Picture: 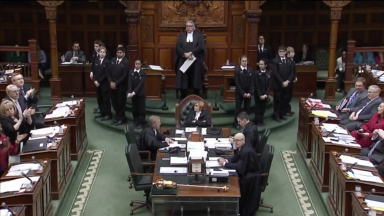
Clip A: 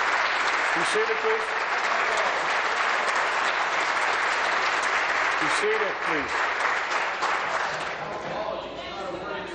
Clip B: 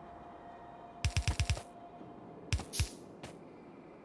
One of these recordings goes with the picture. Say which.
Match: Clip A